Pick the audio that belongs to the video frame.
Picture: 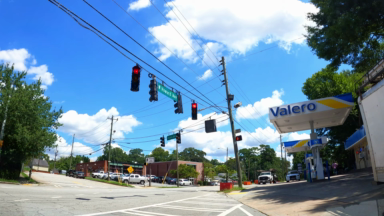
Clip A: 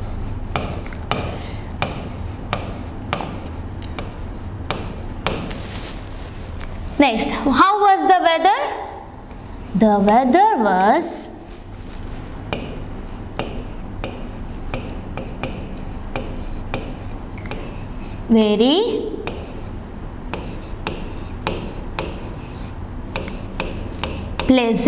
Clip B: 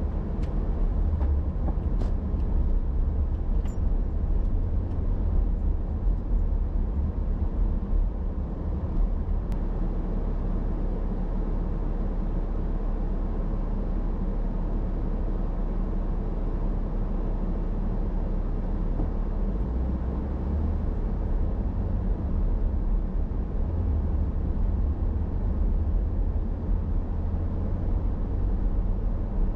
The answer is B